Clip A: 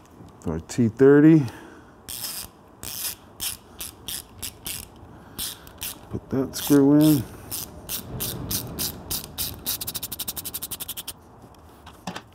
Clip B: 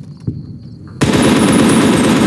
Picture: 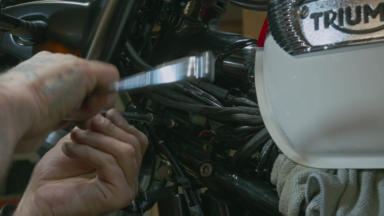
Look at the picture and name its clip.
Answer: A